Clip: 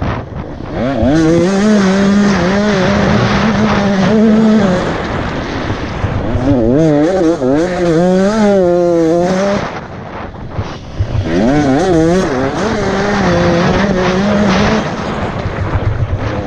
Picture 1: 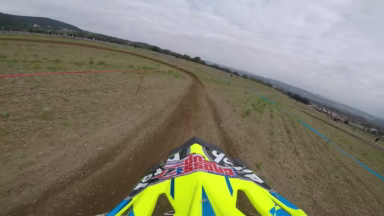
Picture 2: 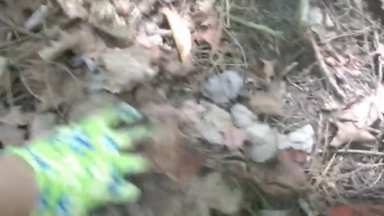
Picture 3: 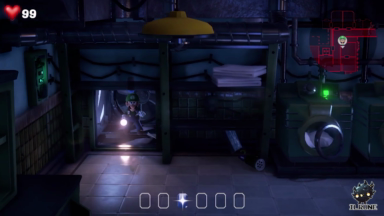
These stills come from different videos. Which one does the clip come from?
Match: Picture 1